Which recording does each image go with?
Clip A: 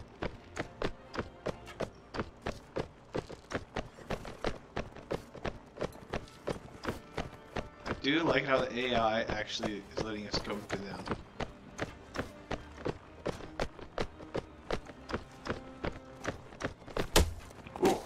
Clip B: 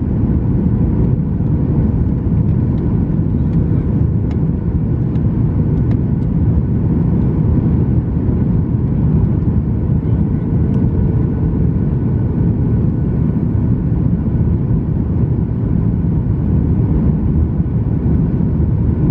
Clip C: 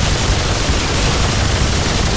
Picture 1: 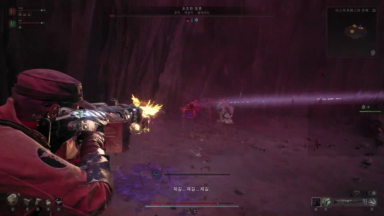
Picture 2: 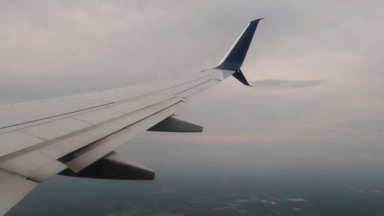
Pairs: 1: C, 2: B